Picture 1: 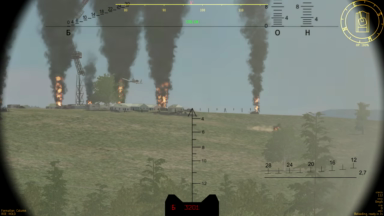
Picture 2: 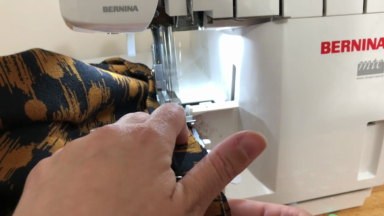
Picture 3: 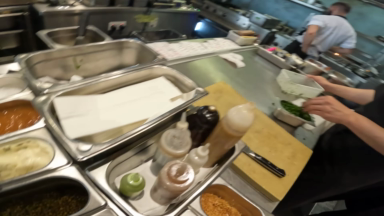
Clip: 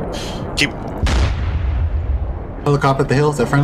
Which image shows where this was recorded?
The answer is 1